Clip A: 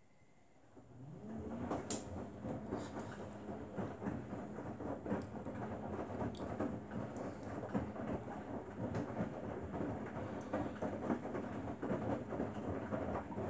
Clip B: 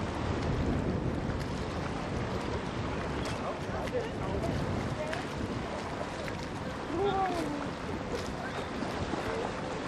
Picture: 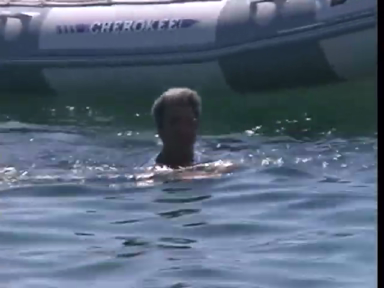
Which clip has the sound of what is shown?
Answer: B